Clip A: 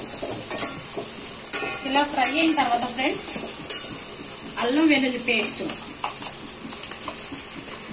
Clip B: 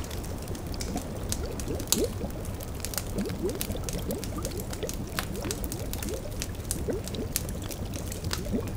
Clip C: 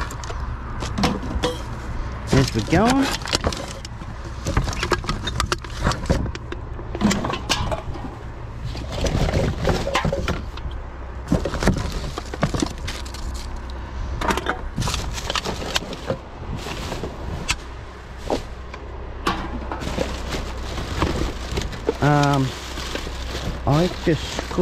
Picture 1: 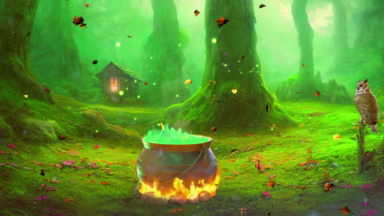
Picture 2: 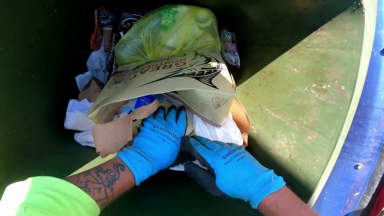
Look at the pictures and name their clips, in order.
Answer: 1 B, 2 C